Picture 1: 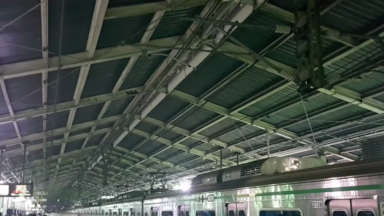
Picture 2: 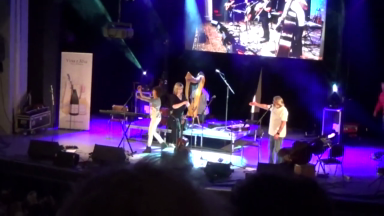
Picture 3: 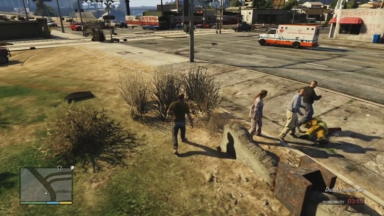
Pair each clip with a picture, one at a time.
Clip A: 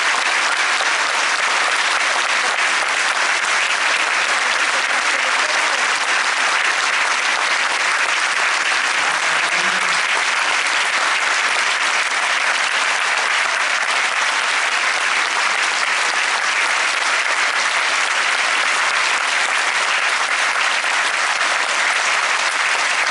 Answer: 2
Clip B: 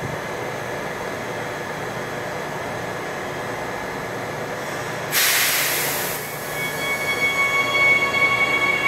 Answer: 1